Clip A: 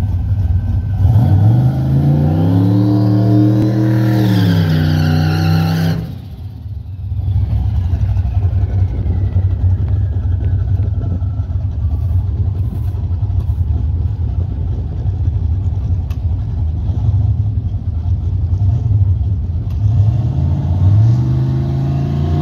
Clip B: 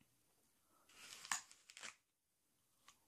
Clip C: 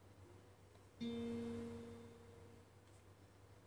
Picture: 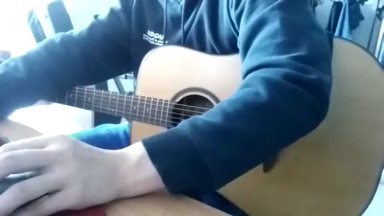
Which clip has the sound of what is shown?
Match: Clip C